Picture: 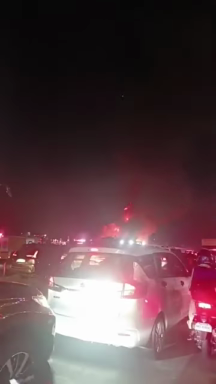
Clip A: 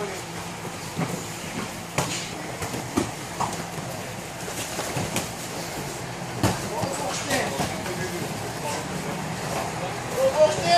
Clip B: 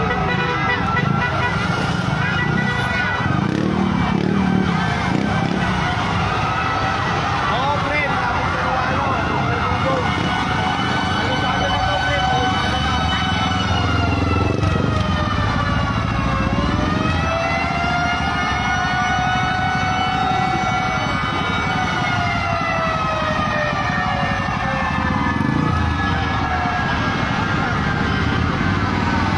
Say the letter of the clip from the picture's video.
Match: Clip B